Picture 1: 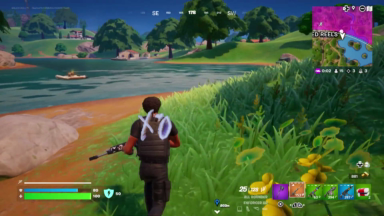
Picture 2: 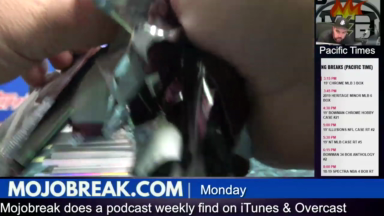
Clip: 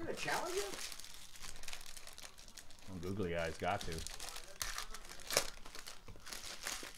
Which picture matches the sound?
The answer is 2